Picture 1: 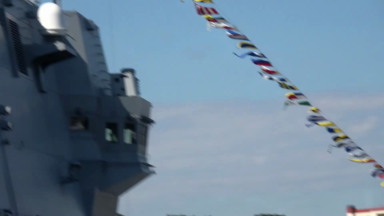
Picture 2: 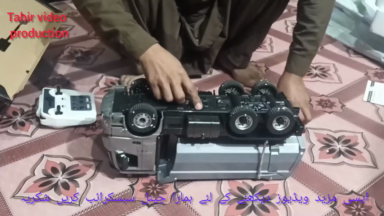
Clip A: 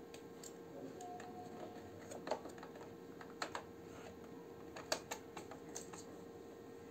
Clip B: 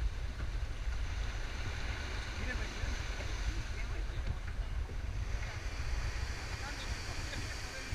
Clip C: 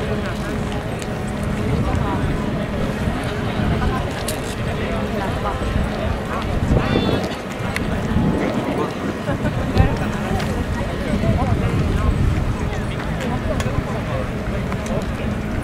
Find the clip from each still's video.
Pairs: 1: C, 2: A